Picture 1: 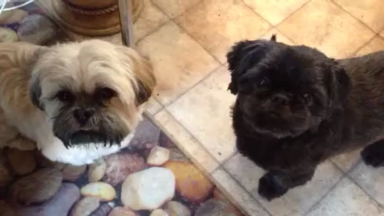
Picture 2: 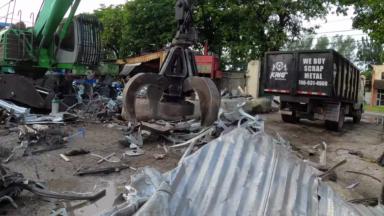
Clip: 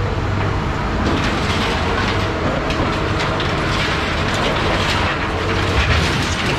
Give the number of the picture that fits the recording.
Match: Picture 2